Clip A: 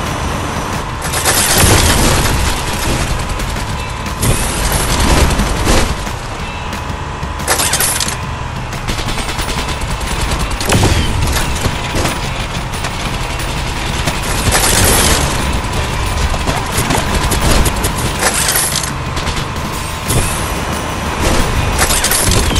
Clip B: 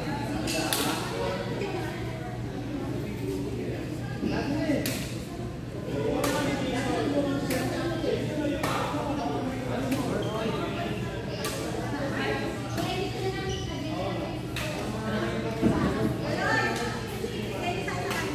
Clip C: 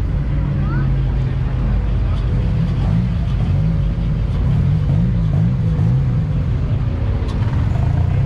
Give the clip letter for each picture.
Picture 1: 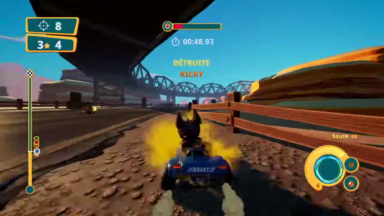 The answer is A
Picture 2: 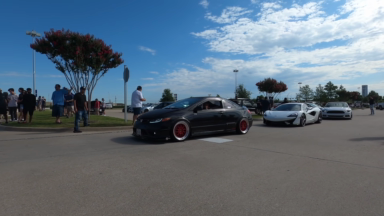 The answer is C